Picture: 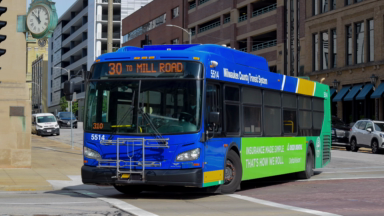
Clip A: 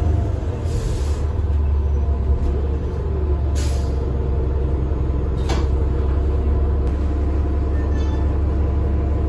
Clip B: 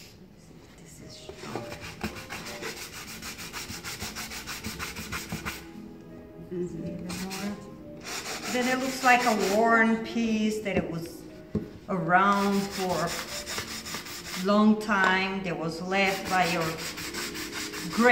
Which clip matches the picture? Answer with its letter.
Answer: A